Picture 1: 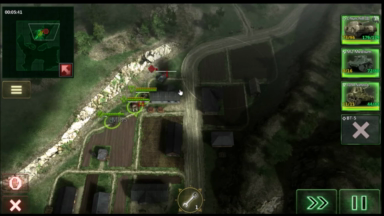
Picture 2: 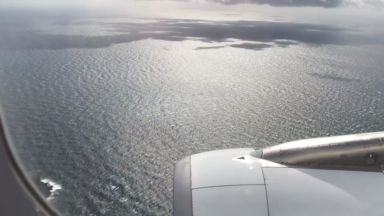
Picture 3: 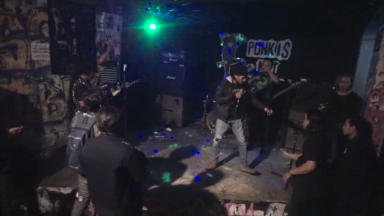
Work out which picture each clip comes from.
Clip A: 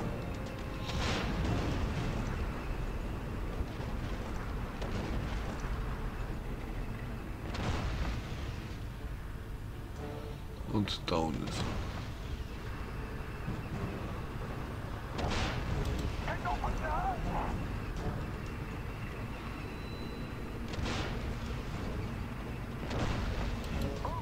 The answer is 1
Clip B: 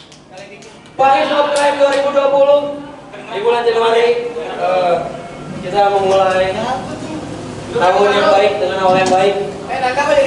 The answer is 3